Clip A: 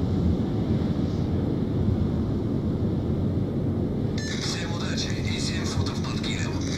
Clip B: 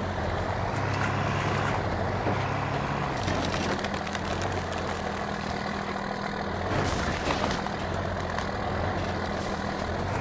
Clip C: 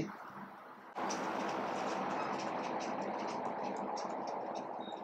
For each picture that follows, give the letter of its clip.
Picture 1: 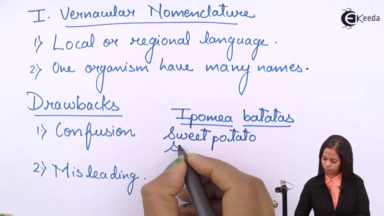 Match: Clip C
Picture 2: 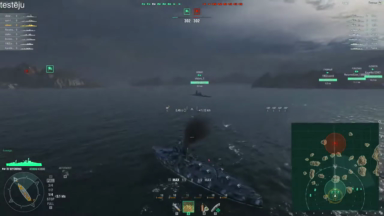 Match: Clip A